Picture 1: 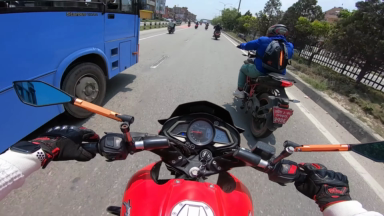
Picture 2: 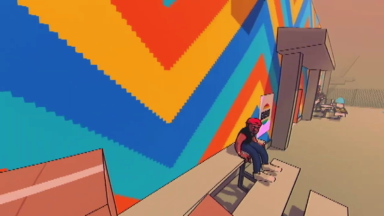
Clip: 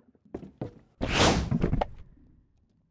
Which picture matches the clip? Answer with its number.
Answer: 2